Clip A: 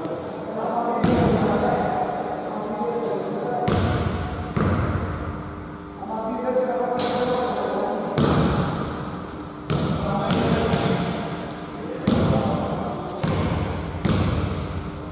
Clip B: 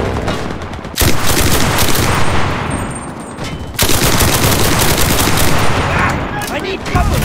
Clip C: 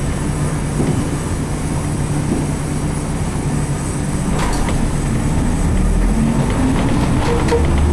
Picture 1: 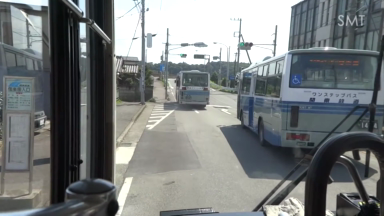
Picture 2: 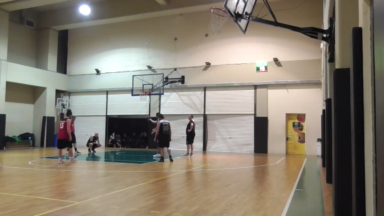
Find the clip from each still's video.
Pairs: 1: C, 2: A